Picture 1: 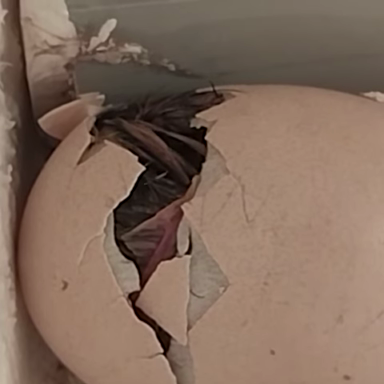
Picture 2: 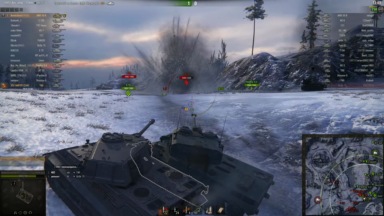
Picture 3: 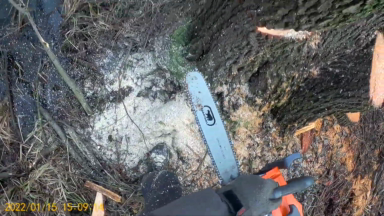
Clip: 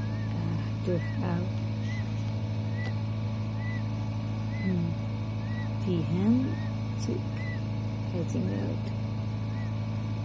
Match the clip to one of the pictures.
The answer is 1